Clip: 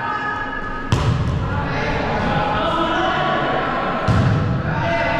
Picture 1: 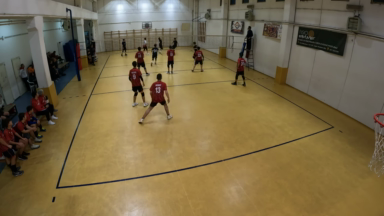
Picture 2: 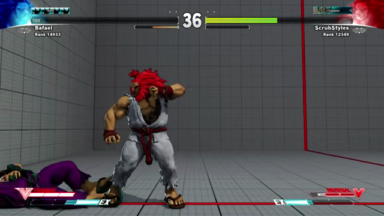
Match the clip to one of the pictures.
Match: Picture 1